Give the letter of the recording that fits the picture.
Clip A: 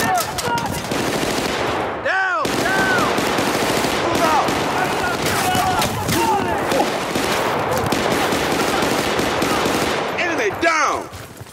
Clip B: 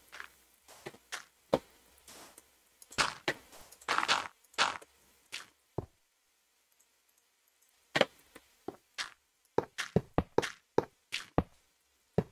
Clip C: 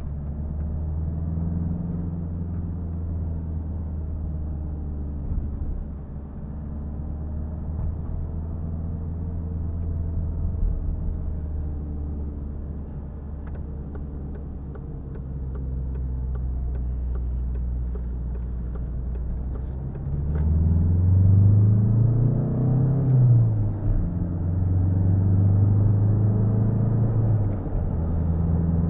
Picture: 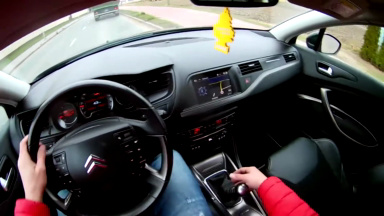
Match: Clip C